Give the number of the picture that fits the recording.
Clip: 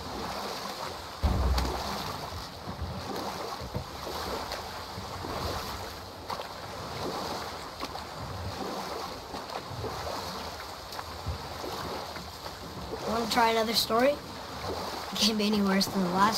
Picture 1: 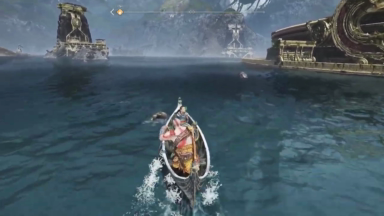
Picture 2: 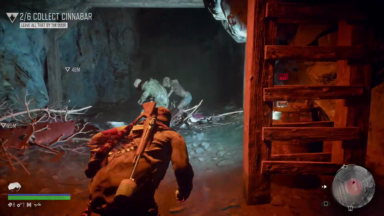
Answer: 1